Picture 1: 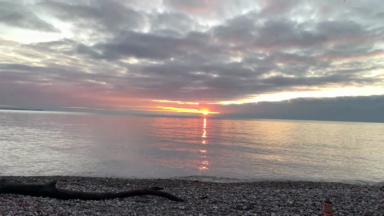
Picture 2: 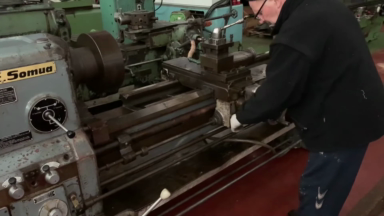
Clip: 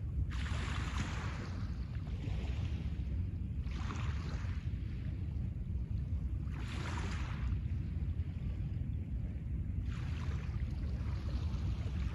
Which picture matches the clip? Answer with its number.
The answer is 1